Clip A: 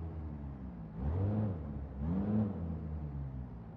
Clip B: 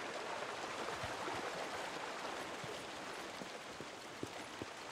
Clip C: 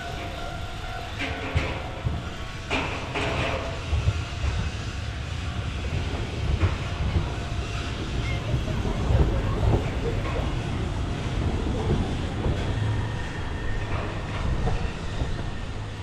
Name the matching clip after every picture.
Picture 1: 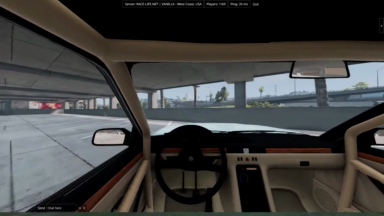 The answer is A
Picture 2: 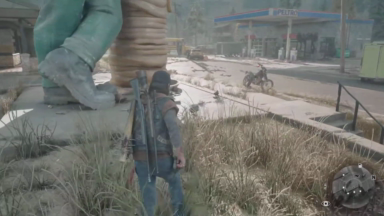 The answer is B